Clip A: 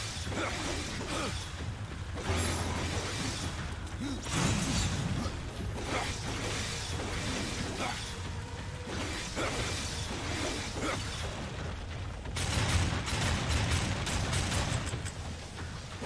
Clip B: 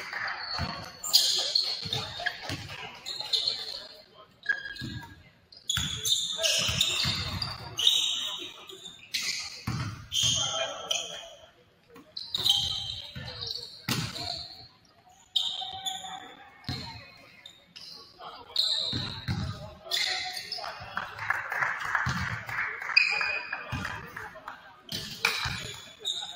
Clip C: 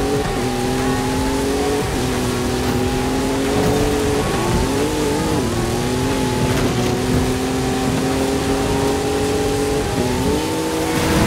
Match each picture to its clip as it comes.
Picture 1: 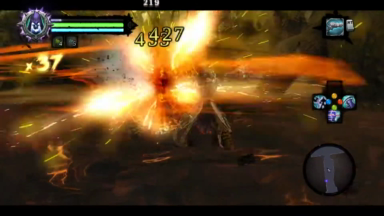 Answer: A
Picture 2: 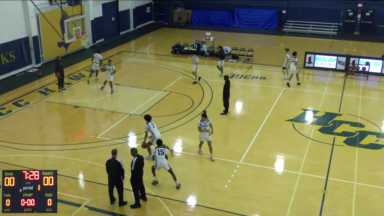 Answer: B